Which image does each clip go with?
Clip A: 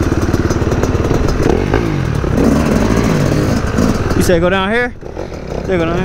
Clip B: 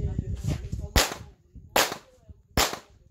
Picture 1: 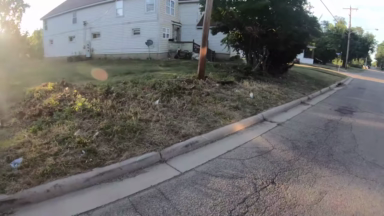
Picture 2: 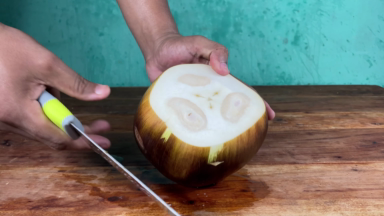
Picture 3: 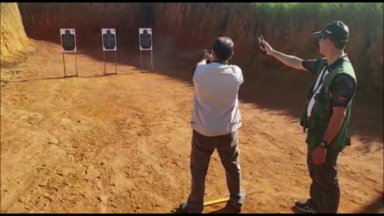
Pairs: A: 1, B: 3